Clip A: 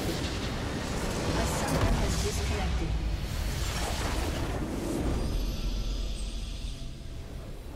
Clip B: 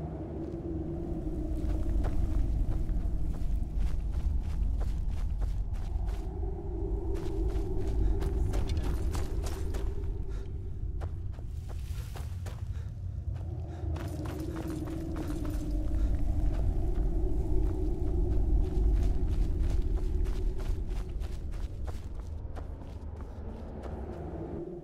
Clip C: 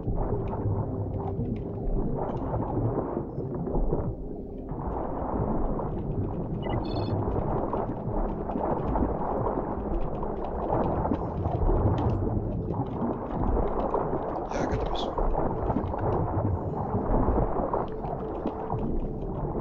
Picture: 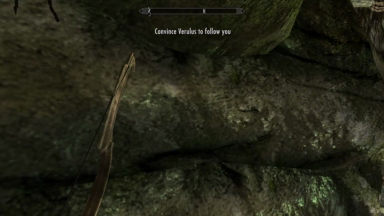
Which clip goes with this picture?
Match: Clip B